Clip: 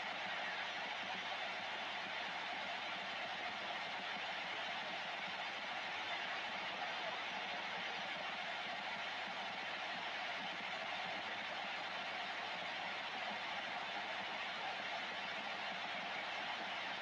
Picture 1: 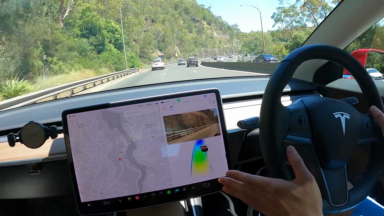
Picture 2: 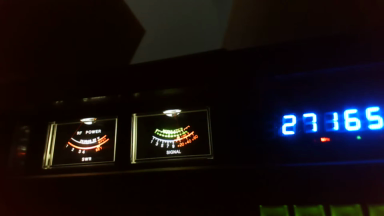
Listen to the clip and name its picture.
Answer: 2